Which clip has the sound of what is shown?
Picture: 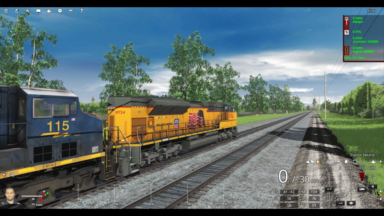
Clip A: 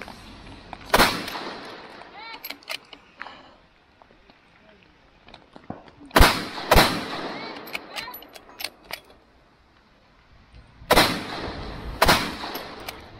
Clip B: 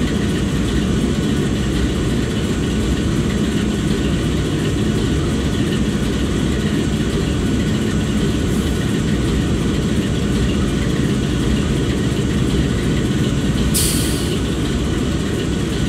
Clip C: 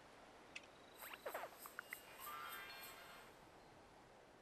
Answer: B